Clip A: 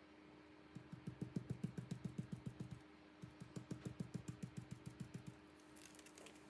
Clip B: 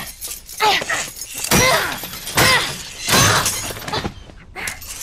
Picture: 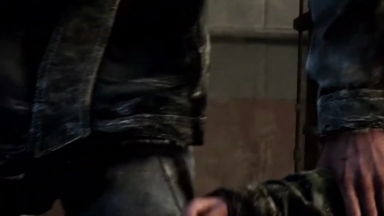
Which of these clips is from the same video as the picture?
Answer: B